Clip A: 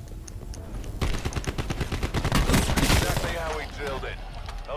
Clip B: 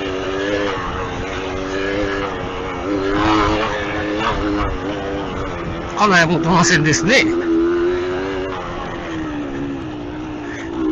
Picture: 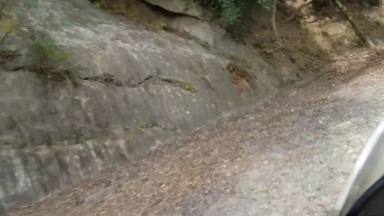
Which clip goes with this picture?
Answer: B